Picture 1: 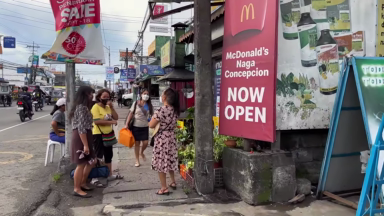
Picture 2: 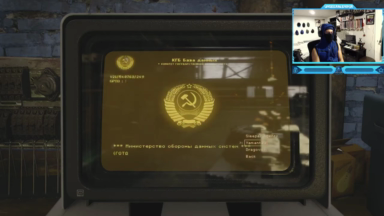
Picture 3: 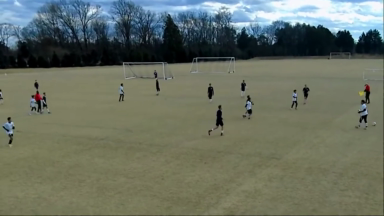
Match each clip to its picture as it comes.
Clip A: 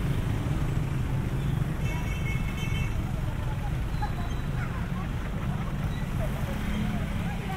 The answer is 1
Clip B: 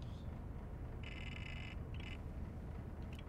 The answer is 2